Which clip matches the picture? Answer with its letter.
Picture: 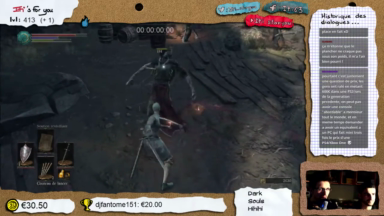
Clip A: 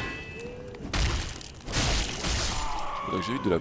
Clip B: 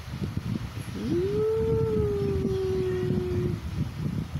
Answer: A